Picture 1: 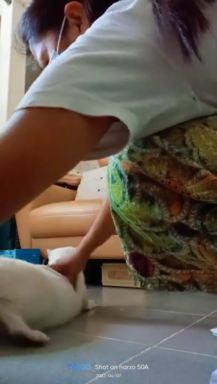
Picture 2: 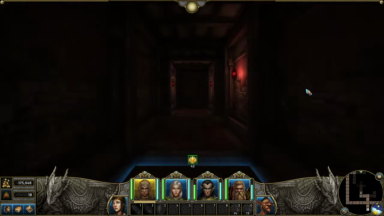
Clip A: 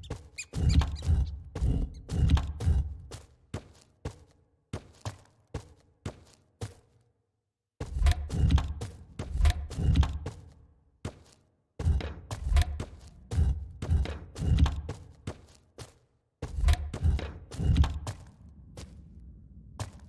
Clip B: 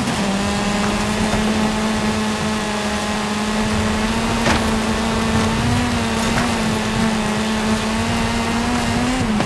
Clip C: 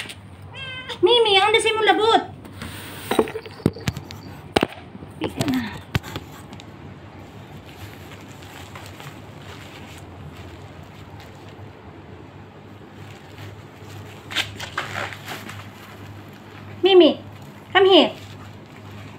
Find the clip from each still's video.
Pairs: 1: C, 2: A